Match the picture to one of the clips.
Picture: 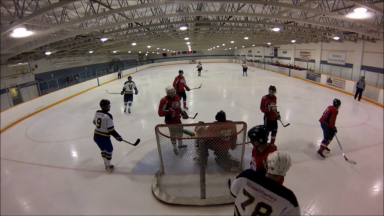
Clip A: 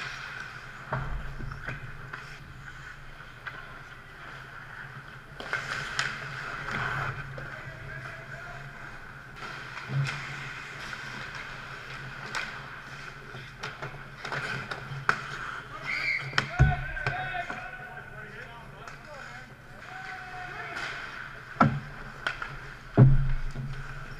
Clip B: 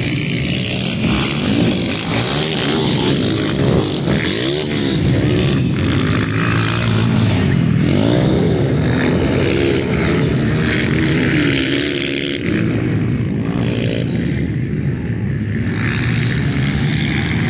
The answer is A